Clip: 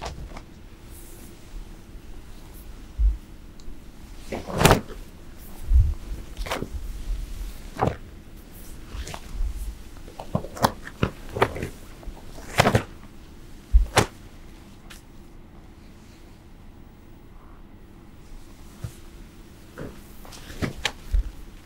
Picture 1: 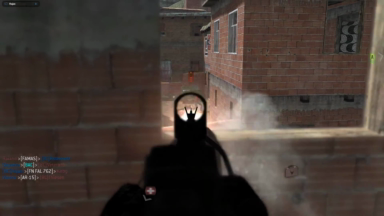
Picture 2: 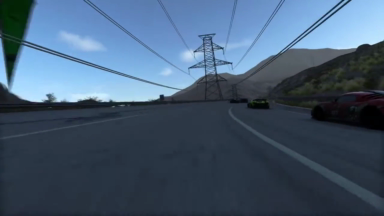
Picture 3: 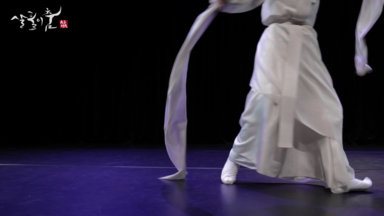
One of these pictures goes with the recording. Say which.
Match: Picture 3